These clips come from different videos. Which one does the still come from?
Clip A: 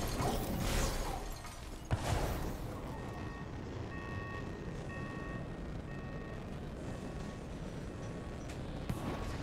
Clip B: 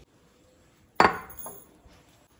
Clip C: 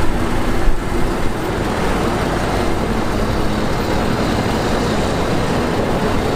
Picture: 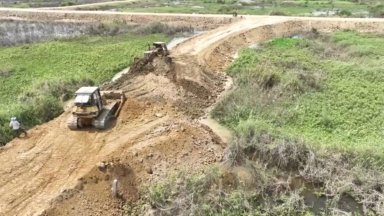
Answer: C